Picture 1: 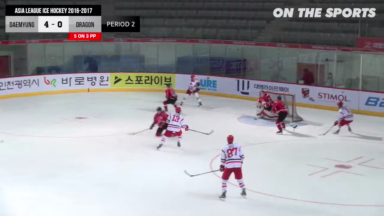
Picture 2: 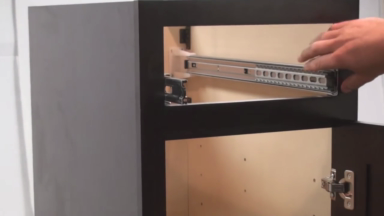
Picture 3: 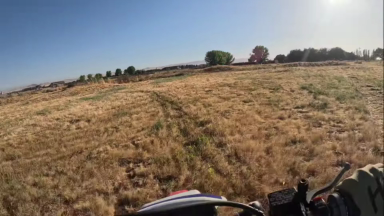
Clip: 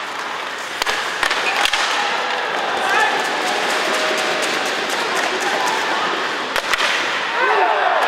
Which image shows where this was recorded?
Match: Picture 1